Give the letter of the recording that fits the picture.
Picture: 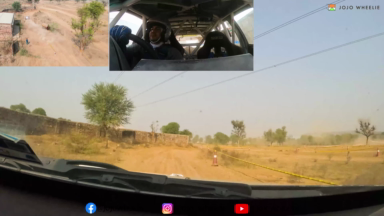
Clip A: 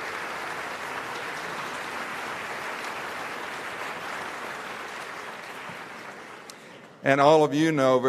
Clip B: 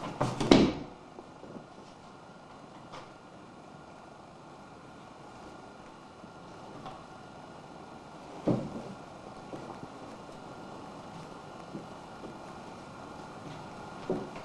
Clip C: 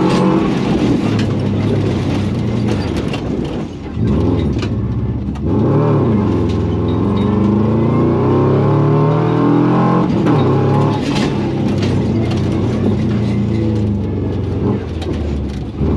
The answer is C